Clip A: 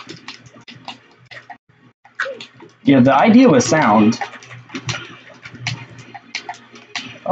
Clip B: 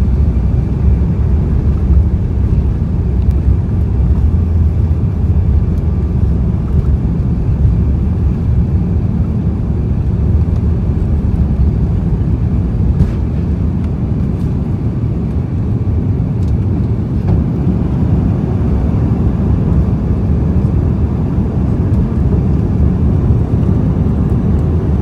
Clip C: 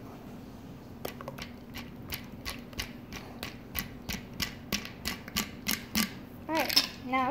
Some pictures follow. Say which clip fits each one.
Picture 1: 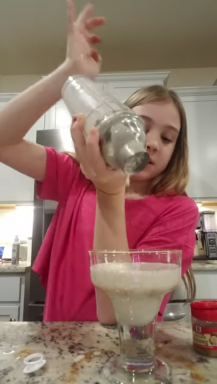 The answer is C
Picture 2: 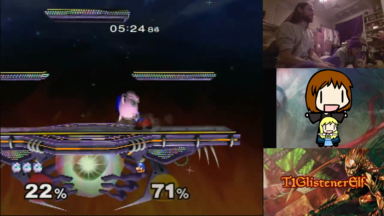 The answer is A